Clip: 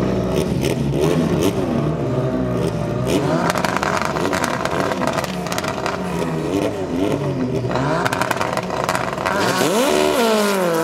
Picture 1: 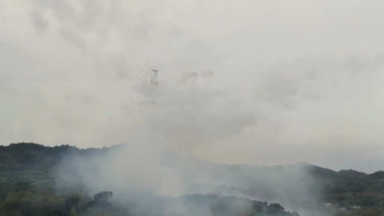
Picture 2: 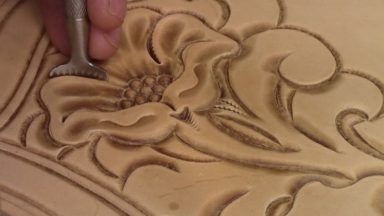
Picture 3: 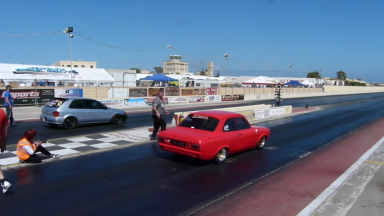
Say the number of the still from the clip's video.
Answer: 3